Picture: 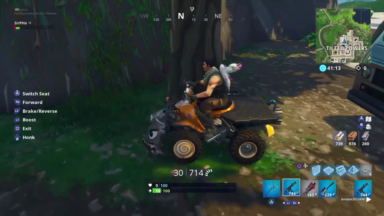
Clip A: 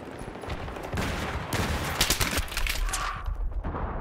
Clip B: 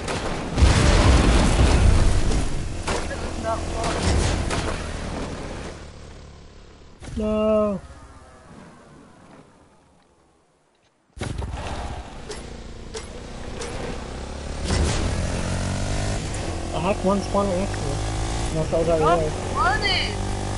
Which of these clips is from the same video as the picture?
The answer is B